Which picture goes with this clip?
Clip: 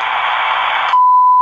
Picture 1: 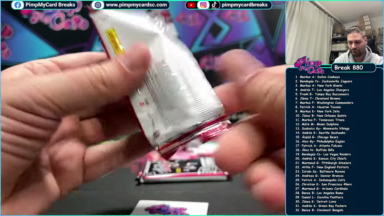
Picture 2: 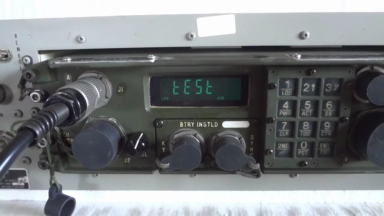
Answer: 2